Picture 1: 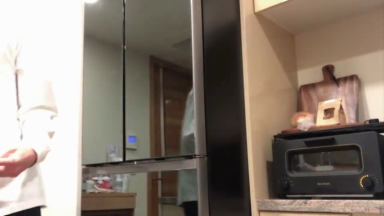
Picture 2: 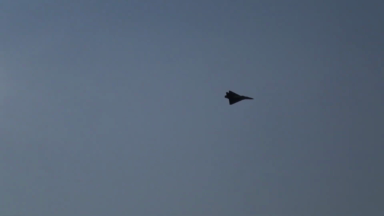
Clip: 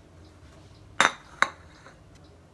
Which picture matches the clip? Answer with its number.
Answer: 1